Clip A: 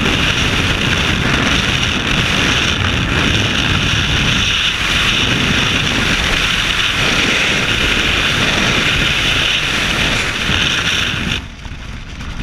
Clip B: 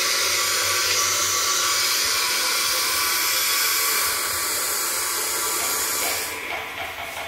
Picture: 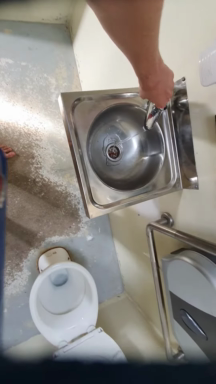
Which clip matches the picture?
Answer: B